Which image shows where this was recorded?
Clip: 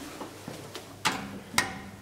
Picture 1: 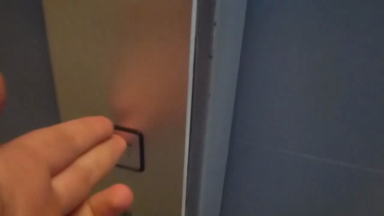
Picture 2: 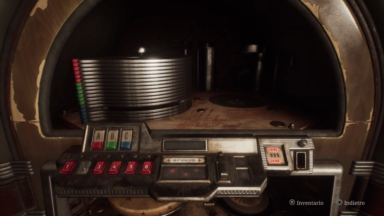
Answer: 1